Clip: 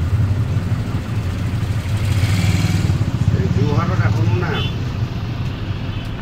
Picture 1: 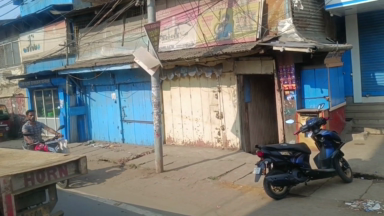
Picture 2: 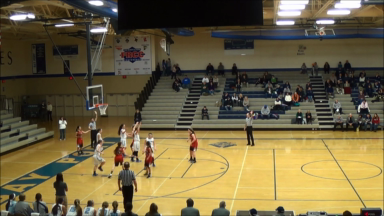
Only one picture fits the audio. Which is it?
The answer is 1